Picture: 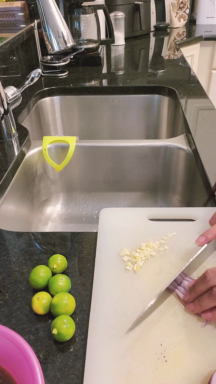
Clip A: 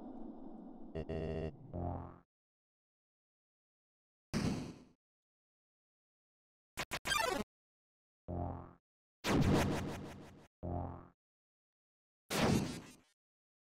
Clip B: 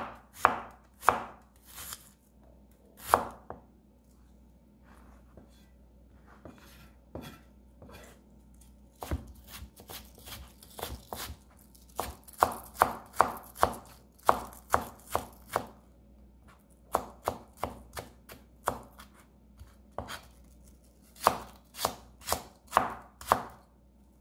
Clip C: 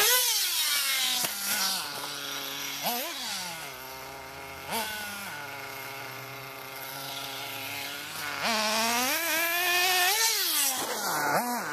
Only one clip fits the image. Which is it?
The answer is B